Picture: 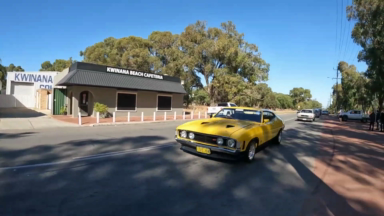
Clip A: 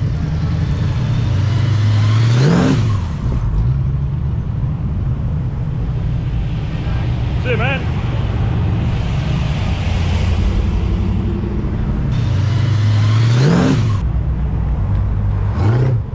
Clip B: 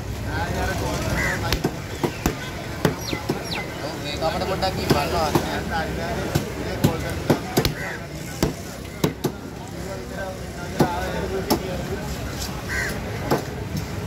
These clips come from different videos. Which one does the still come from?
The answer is A